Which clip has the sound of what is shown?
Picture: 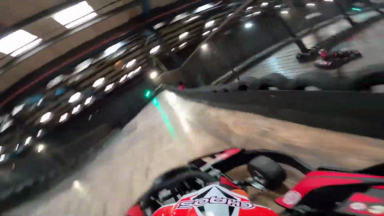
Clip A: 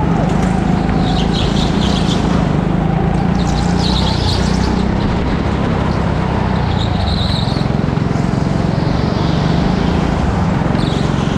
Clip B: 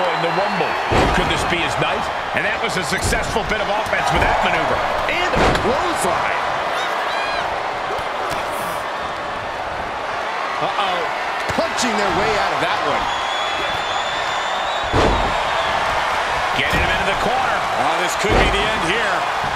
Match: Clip A